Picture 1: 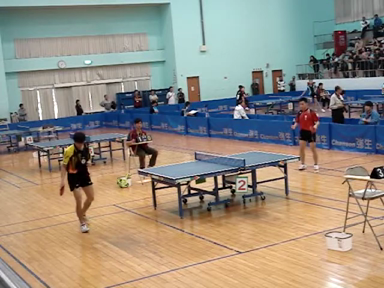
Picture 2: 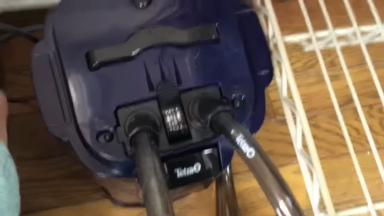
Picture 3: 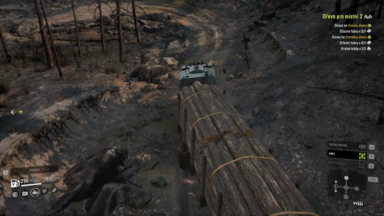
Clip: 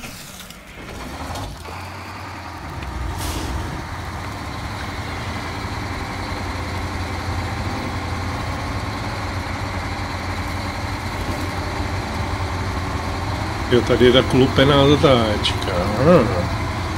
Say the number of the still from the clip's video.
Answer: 3